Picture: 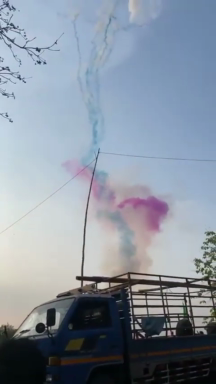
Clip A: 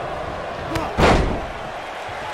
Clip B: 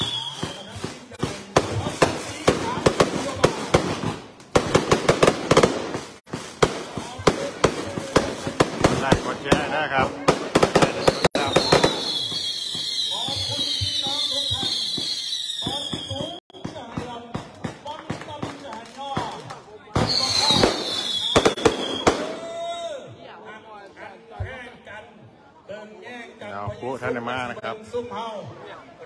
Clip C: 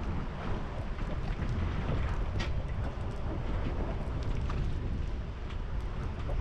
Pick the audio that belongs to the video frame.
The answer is B